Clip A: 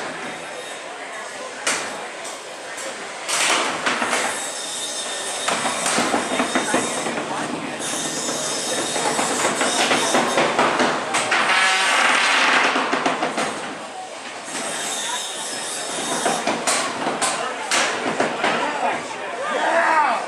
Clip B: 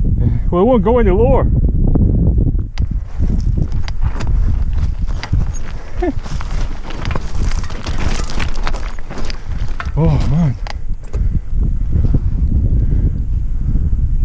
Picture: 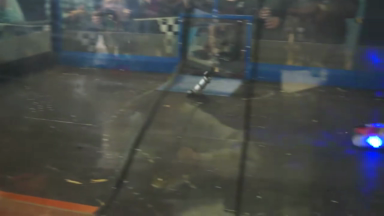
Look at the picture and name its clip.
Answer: A